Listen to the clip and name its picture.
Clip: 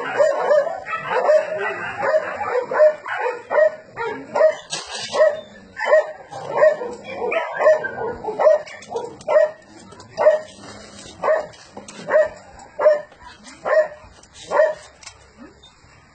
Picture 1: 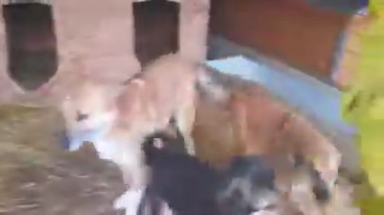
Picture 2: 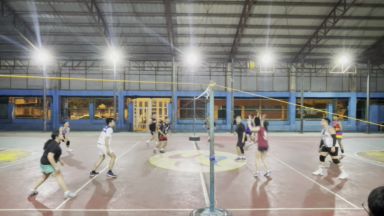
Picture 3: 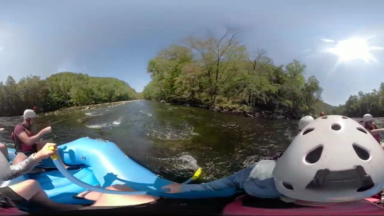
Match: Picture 1